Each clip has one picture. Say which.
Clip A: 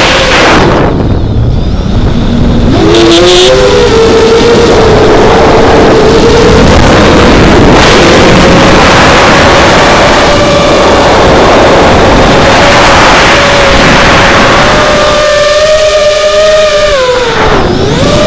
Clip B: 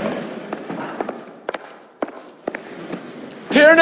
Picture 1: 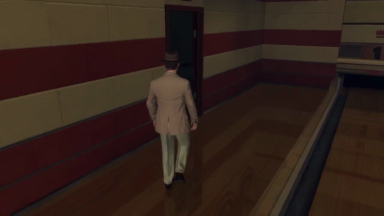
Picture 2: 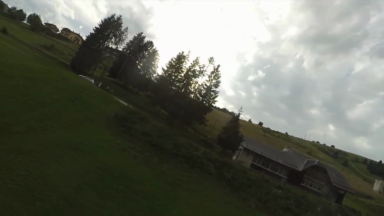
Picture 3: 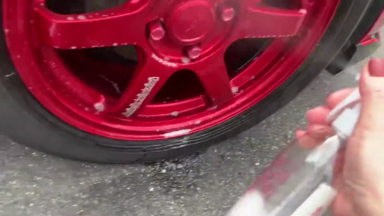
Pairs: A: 2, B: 1